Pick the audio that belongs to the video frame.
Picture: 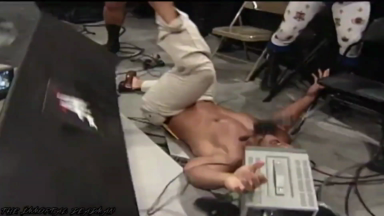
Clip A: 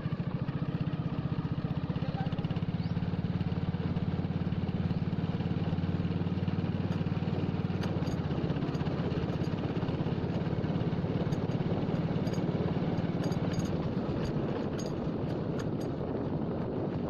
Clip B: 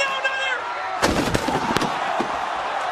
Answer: B